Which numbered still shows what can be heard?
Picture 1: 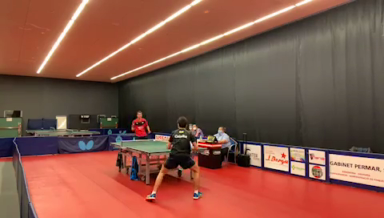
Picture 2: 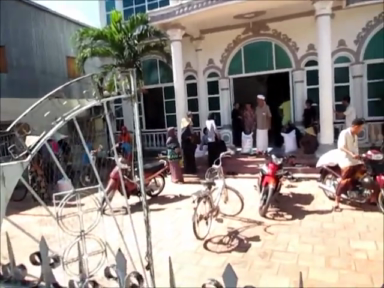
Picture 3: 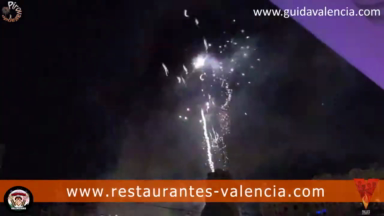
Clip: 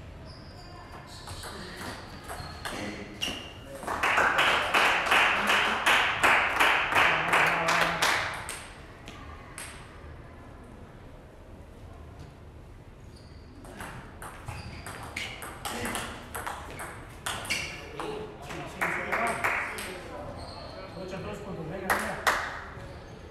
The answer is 1